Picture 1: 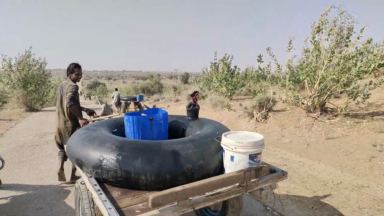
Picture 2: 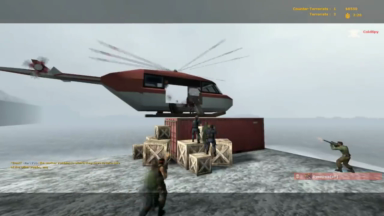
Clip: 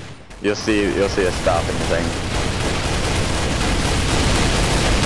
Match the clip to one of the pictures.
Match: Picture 2